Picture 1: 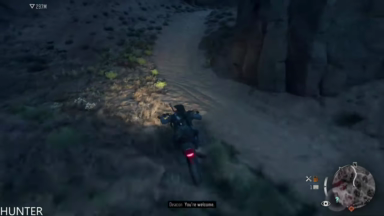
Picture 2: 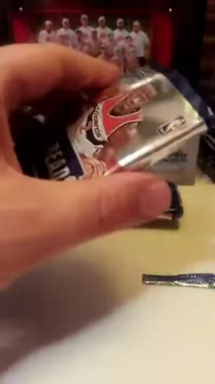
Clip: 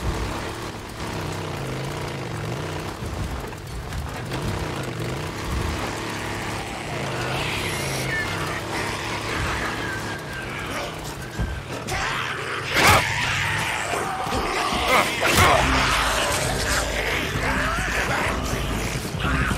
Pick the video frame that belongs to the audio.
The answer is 1